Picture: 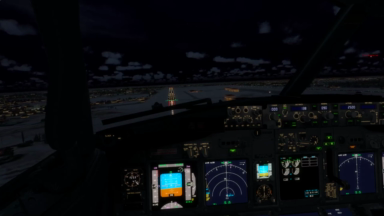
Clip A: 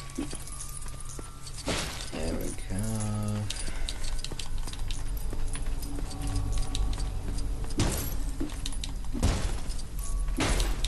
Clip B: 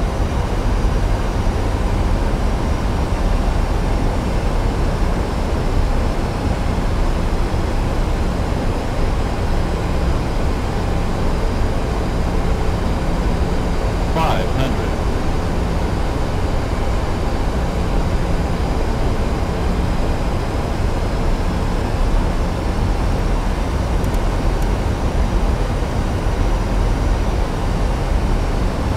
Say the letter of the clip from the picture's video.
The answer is B